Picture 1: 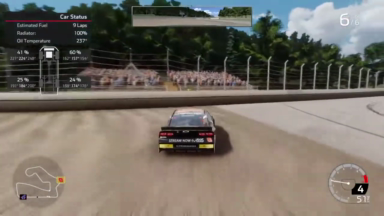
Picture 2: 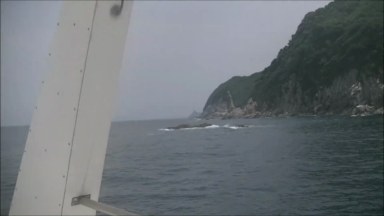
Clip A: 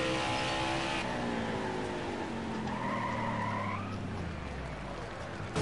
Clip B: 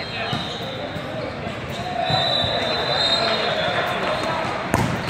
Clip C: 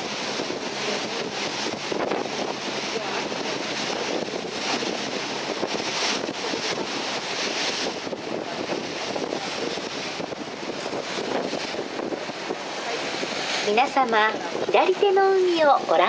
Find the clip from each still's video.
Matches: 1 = A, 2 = C